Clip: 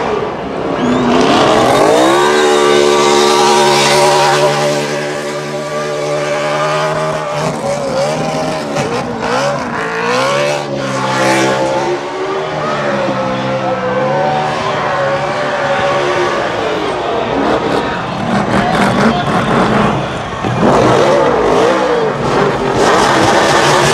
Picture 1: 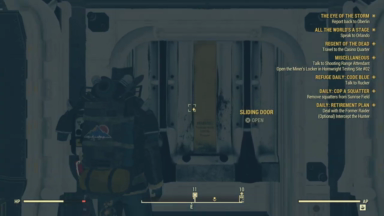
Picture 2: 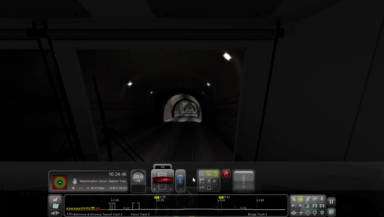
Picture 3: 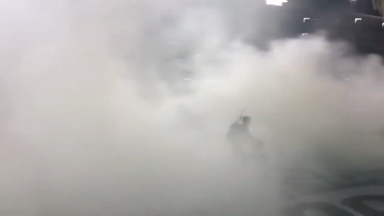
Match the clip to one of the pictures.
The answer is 3